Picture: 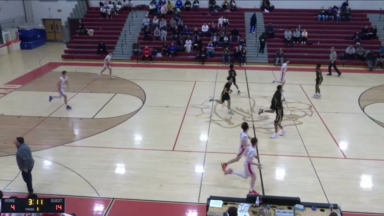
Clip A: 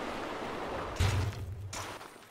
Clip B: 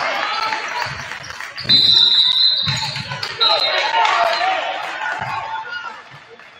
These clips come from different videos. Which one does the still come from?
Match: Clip B